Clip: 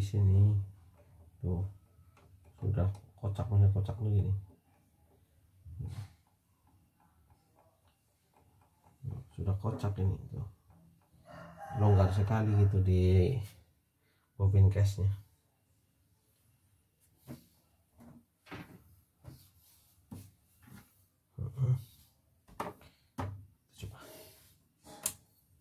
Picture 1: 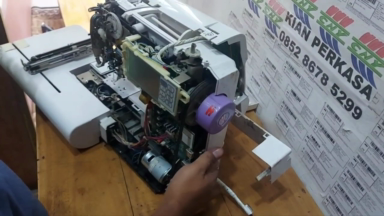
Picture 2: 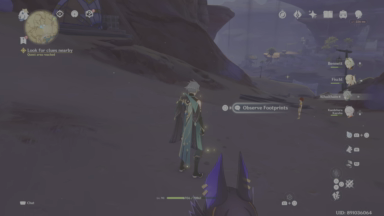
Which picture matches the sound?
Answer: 1